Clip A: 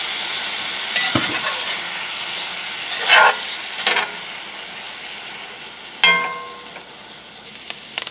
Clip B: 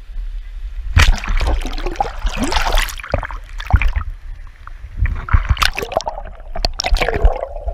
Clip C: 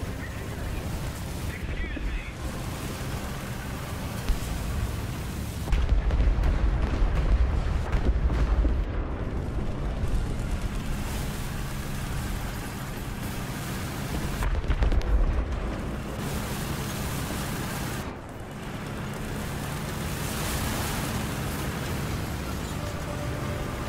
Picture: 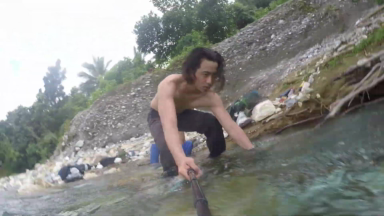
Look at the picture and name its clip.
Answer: B